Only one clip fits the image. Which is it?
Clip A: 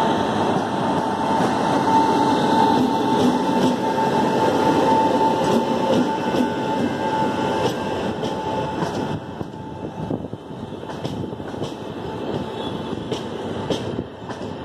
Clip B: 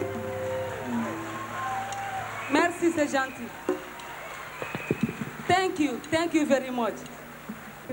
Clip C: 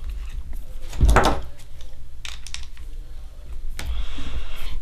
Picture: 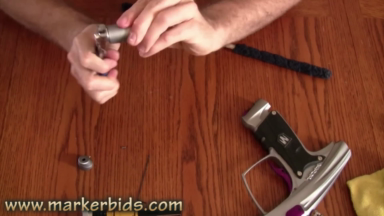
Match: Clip C